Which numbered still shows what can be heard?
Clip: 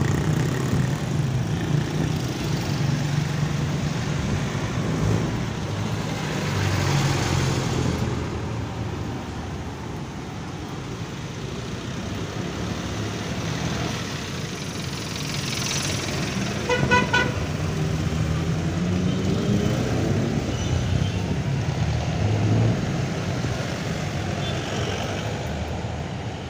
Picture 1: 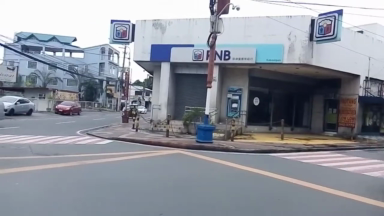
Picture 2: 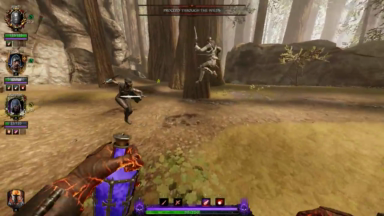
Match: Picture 1